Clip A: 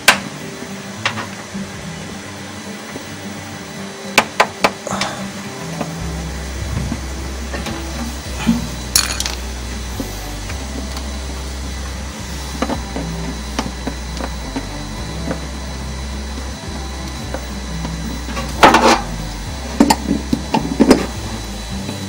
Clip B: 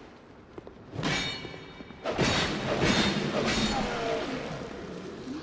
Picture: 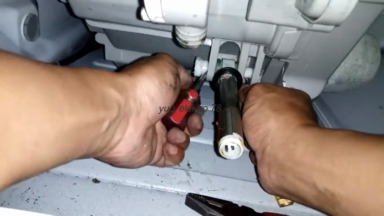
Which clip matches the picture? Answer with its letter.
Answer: A